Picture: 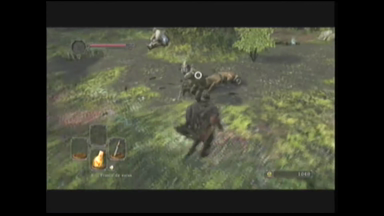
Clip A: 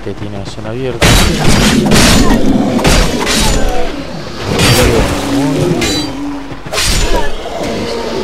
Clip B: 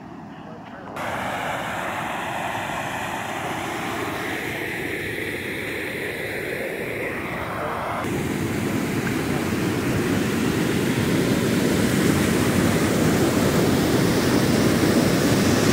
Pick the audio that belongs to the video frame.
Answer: A